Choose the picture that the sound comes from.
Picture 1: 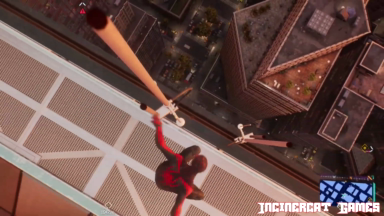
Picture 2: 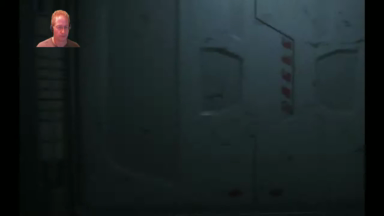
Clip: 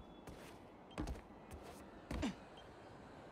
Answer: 1